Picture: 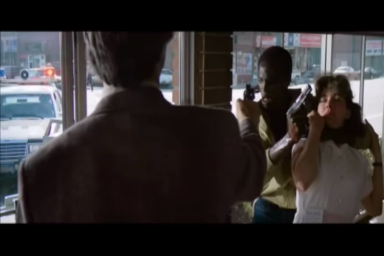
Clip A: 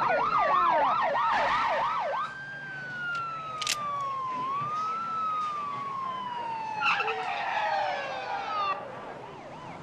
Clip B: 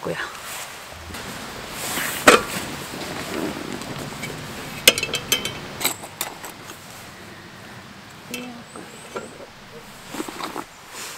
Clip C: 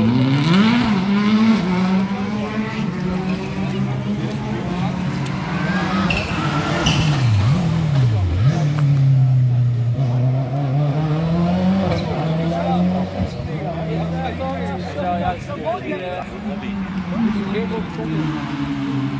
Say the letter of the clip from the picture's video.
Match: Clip A